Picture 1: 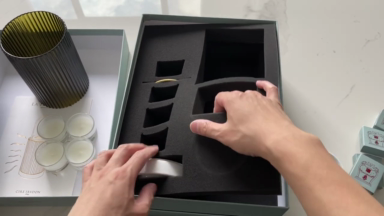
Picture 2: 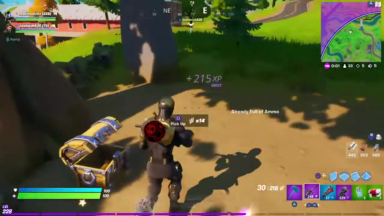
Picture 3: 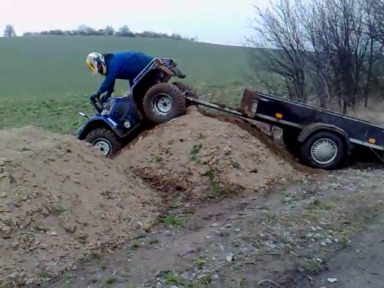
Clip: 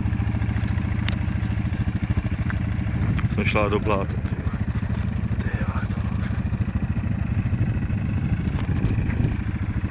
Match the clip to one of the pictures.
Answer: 3